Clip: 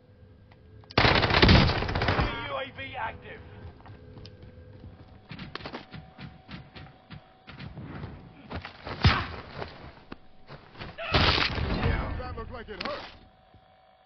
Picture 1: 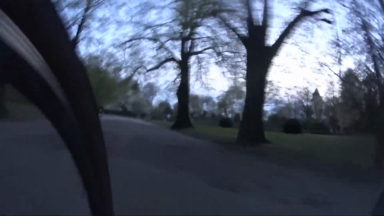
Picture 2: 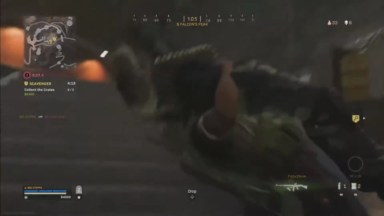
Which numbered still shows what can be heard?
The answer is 2